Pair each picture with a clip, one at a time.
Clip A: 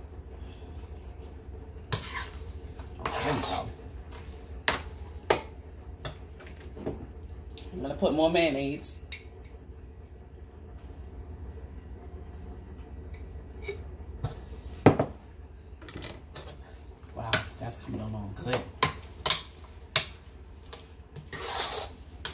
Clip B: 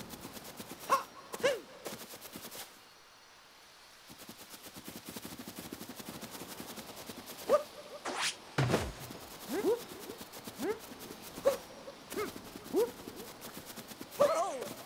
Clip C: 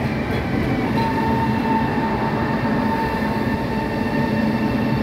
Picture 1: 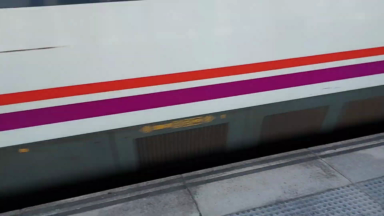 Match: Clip C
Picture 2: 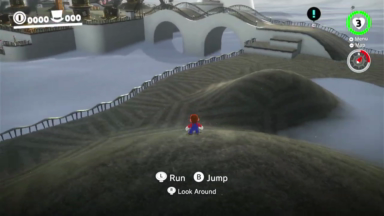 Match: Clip B